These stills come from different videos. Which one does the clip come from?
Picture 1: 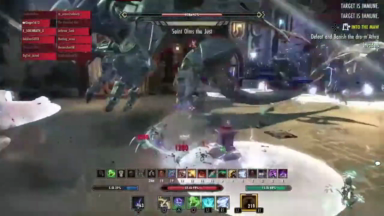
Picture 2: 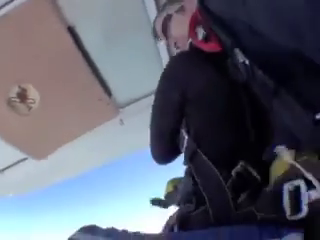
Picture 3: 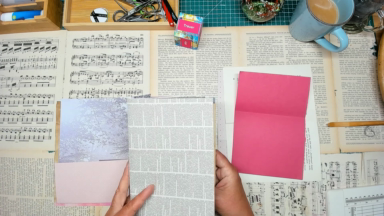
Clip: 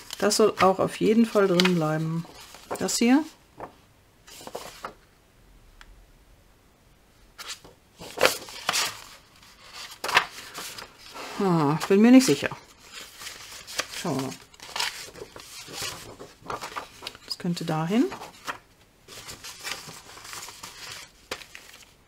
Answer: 3